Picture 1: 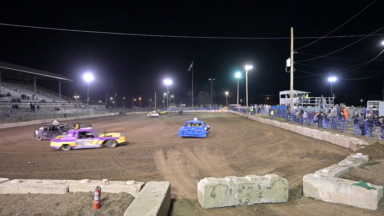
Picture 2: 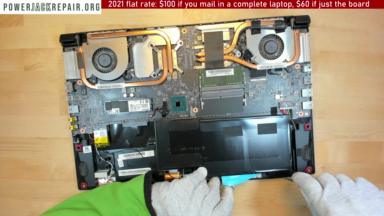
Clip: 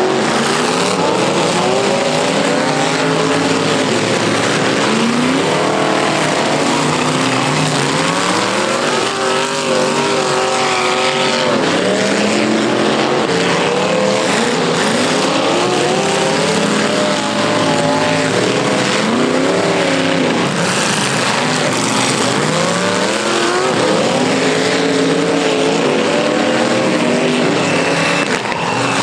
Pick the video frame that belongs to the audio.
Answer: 1